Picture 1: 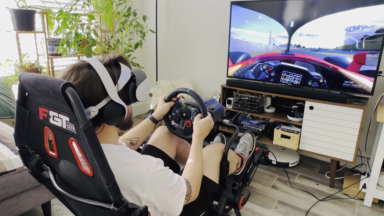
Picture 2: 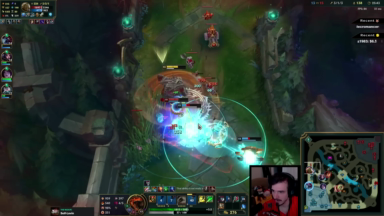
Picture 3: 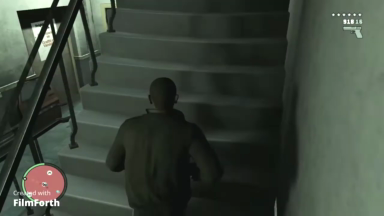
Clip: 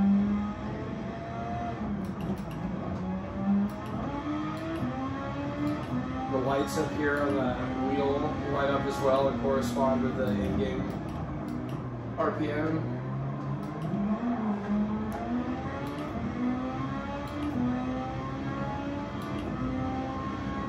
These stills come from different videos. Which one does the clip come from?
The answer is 1